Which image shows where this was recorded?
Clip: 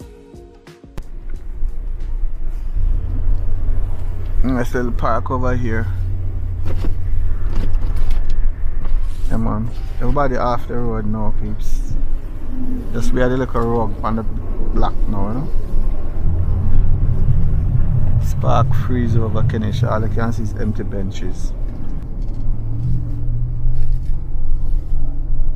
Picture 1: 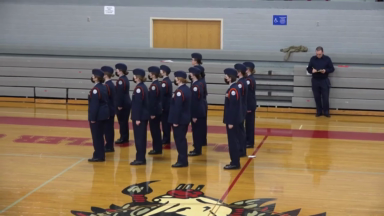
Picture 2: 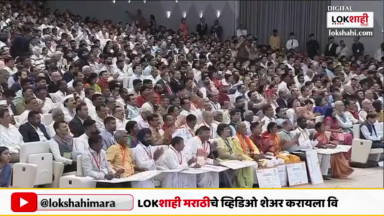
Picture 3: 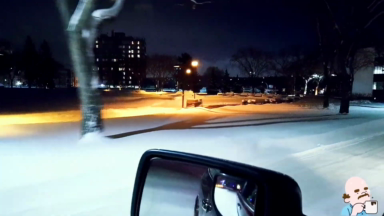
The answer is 3